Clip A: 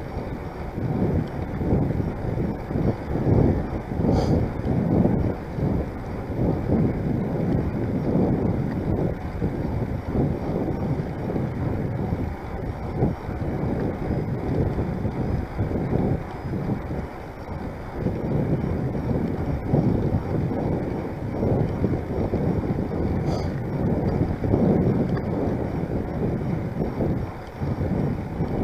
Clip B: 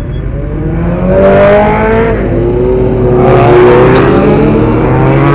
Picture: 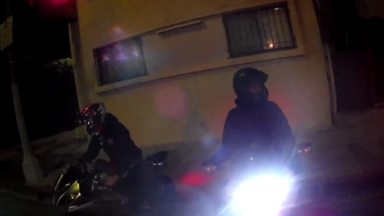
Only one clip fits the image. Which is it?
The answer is B